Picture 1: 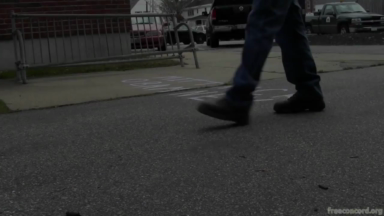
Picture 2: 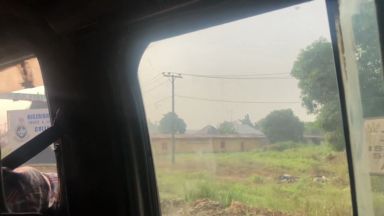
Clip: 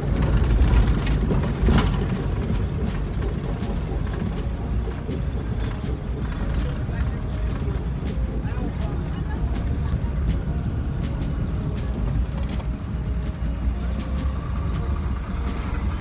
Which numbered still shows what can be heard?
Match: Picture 2